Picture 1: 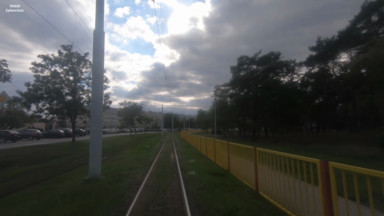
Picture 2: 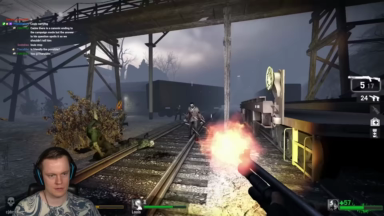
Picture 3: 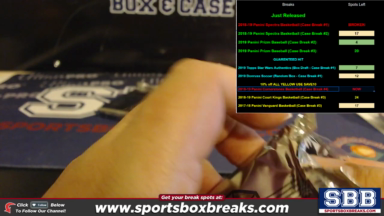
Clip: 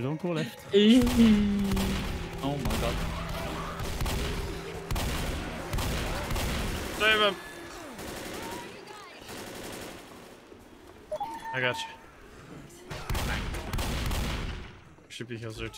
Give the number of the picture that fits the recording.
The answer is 2